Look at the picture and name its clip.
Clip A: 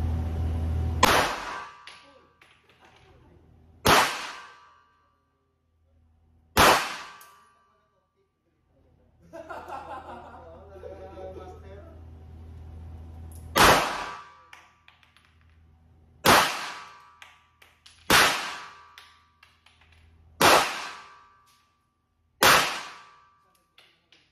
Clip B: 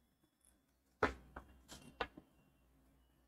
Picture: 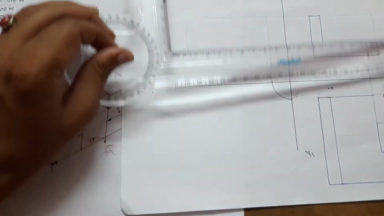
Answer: B